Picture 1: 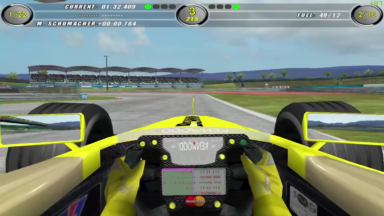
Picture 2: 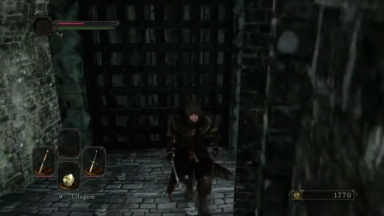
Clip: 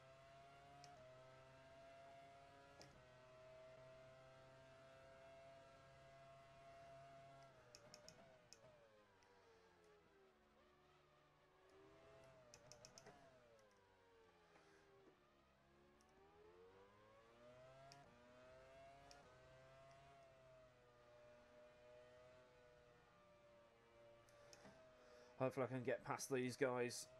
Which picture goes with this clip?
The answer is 1